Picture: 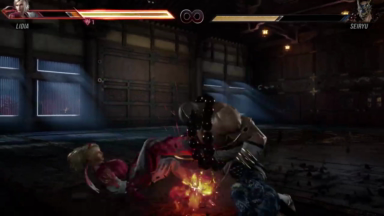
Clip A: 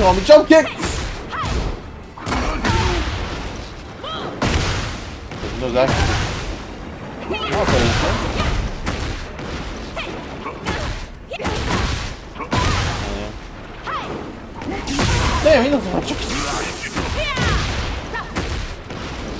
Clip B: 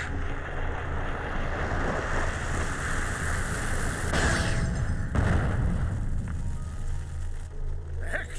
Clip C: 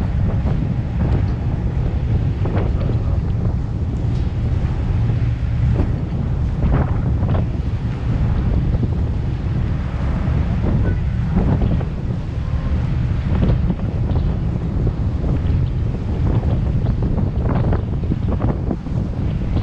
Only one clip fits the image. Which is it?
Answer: A